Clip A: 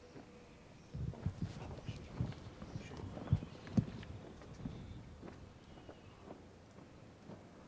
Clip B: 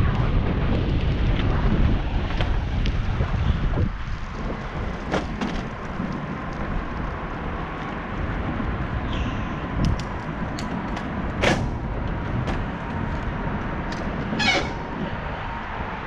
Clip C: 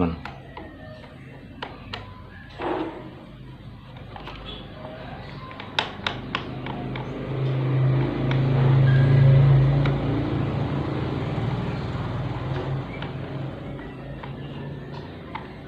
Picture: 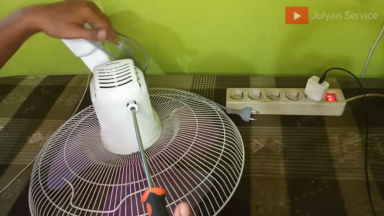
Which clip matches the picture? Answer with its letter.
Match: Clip C